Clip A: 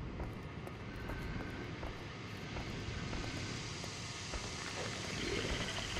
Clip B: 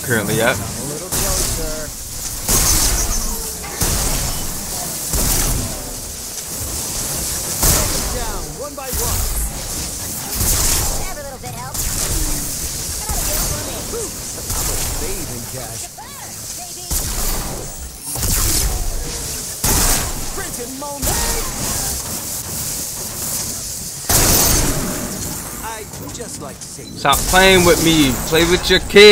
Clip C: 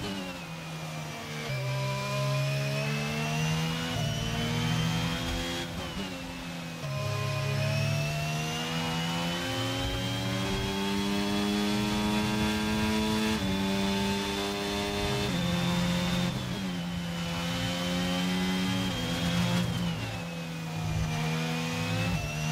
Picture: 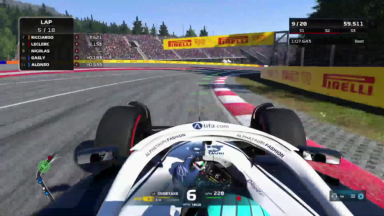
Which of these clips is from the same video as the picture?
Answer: C